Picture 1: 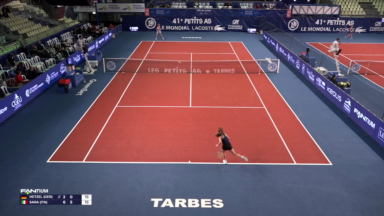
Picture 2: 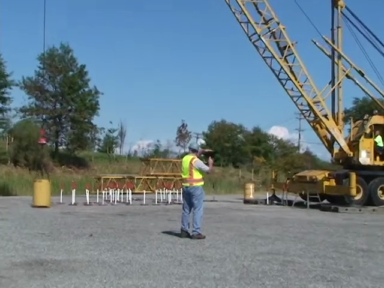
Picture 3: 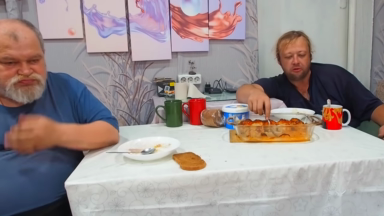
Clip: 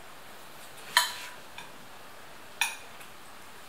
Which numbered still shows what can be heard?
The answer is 3